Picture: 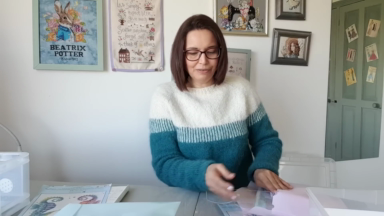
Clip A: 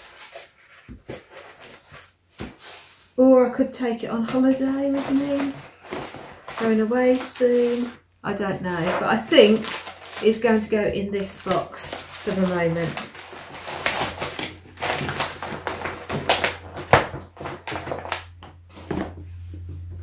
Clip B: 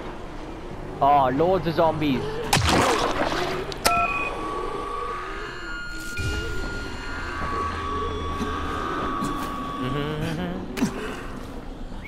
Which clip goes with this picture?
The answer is A